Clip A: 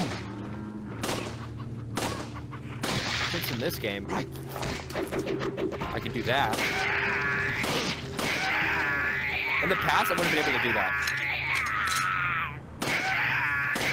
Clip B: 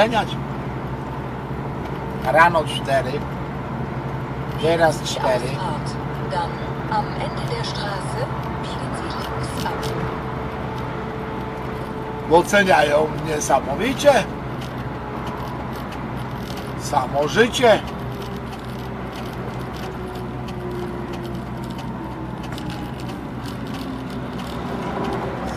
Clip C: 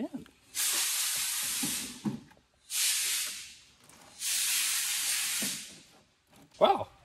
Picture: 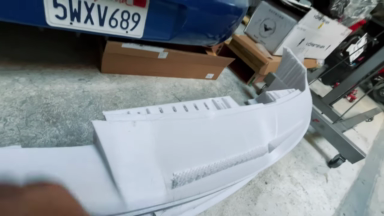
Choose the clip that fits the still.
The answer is C